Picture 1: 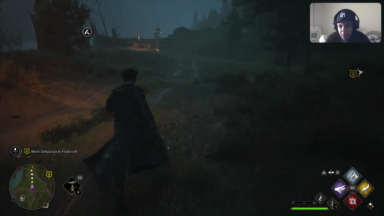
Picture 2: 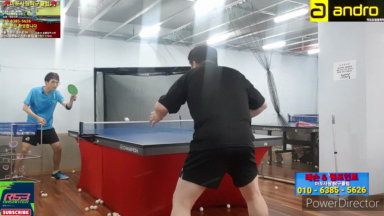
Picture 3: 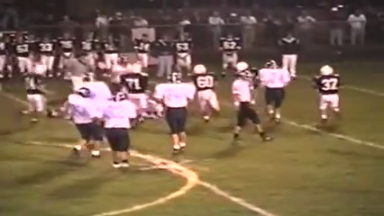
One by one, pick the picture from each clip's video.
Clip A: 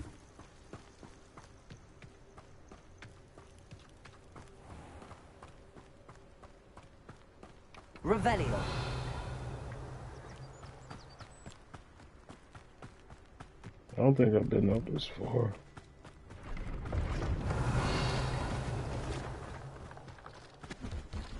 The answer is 1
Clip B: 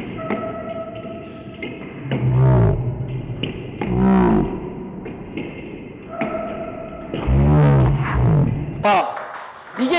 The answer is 2